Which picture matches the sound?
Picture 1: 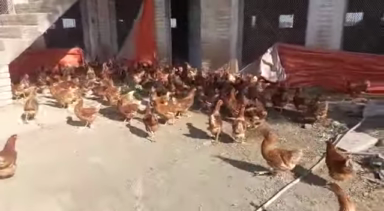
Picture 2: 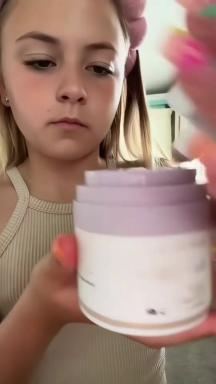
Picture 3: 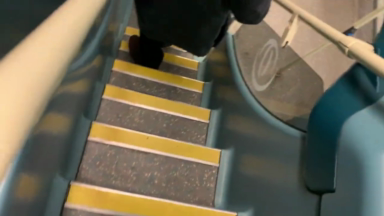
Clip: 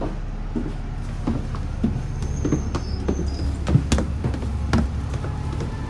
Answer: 3